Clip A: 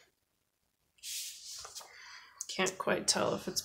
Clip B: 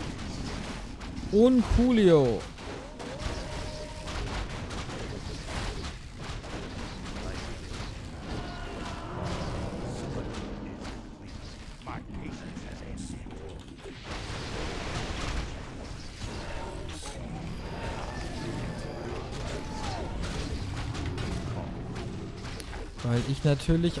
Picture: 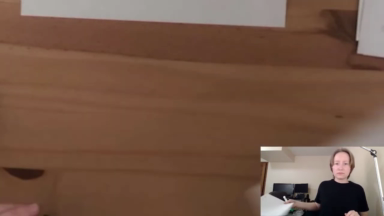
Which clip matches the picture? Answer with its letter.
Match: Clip A